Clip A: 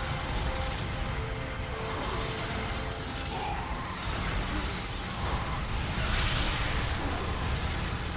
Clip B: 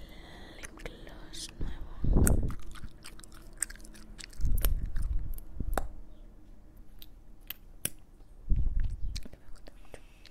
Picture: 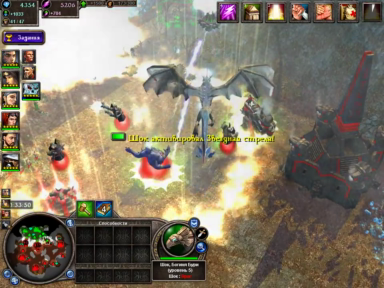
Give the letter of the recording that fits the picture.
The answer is A